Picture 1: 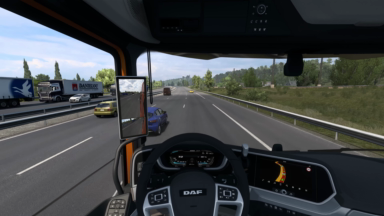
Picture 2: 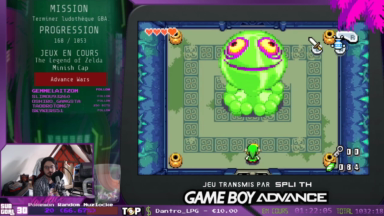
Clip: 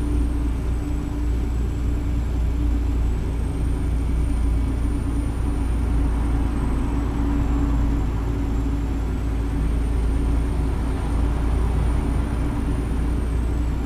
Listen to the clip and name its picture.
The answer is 1